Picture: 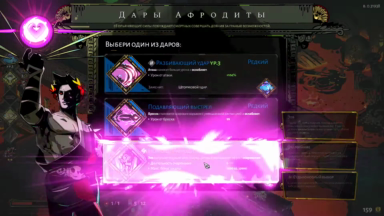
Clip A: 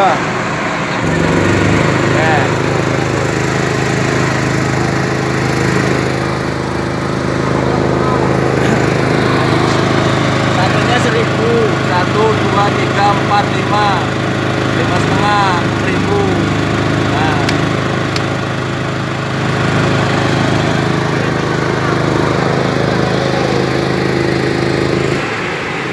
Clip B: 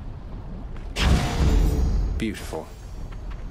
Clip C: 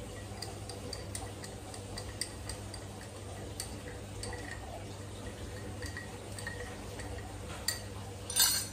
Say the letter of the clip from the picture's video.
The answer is B